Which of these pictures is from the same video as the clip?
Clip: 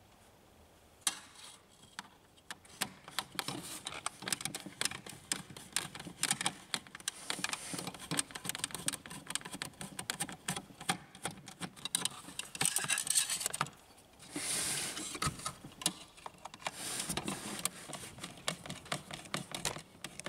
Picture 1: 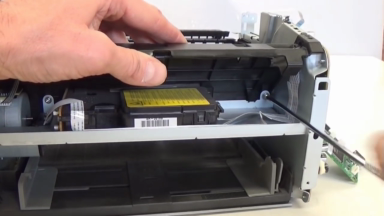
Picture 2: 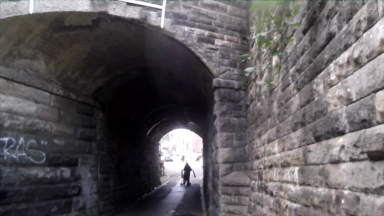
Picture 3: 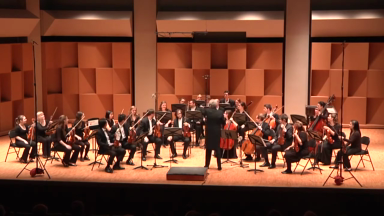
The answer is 1